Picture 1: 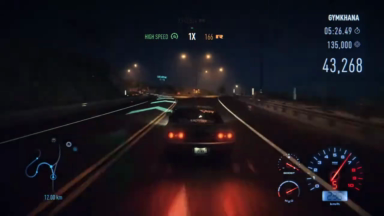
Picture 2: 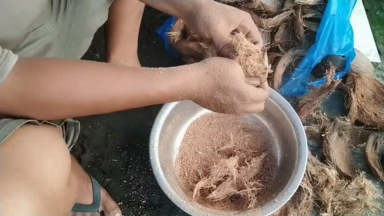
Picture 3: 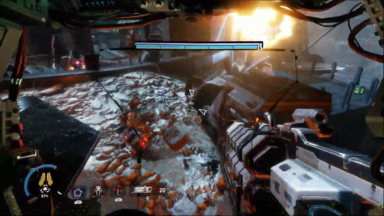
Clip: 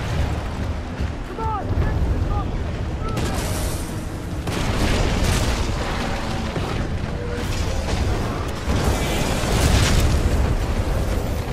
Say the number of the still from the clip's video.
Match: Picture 3